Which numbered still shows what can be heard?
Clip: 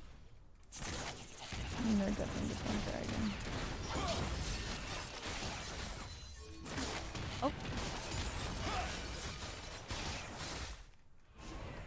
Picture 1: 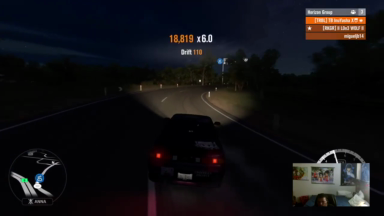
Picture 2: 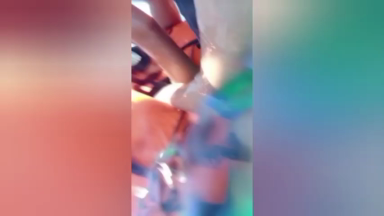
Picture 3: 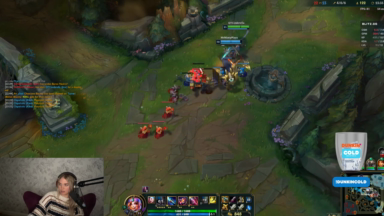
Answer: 3